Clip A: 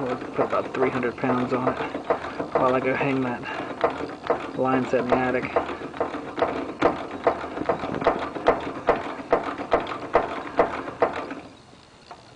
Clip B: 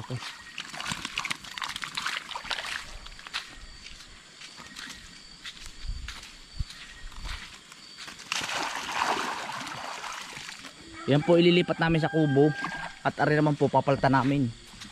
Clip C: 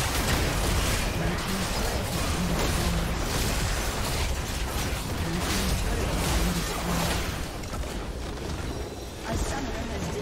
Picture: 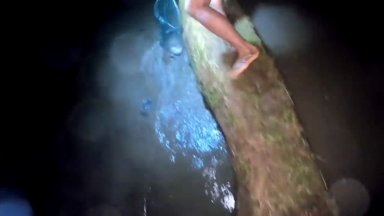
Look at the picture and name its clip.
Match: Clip B